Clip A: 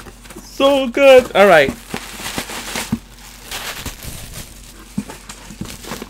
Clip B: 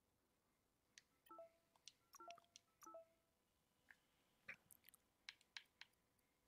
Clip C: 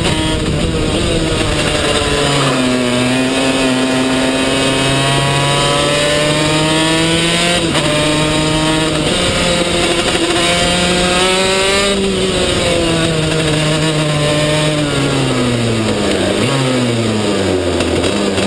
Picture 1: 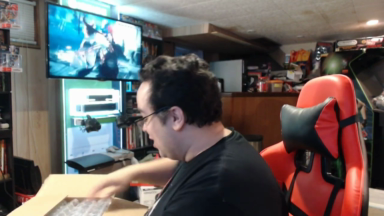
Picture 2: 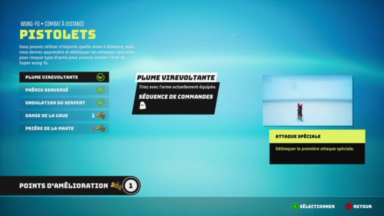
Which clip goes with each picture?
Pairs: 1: A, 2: B